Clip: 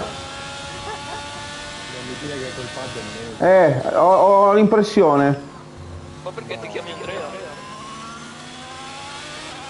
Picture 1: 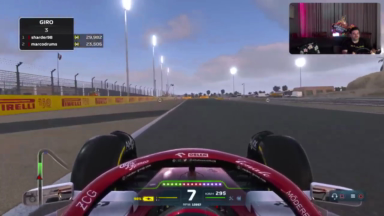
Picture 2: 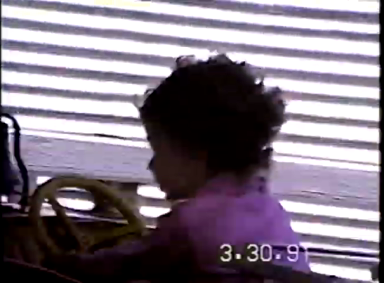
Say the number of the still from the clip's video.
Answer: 1